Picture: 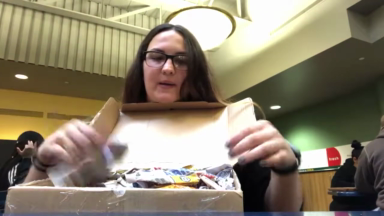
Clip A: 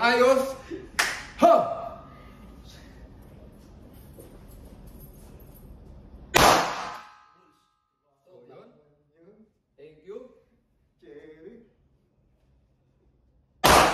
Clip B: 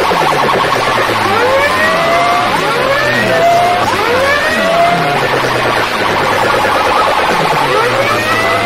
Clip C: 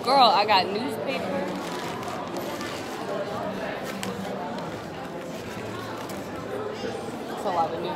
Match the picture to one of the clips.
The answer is C